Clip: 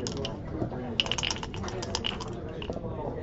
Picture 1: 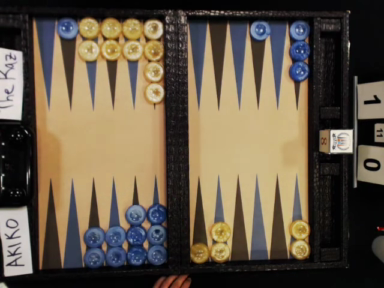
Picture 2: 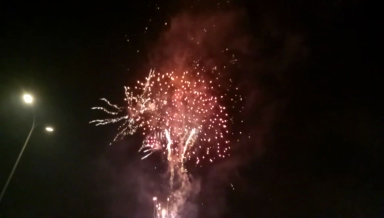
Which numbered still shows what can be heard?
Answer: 1